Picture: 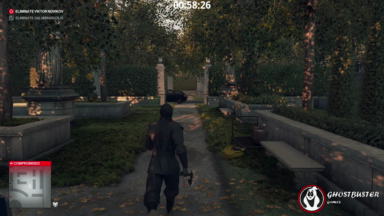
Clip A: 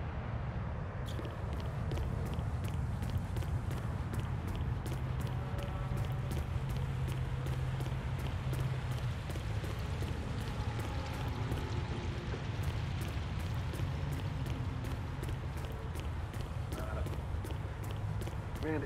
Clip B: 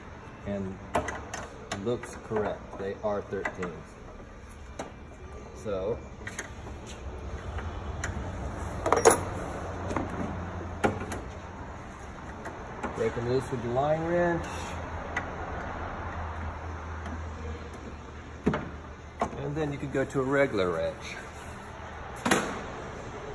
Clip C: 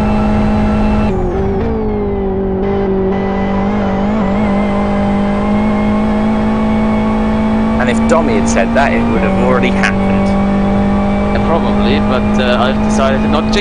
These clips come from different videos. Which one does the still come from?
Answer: A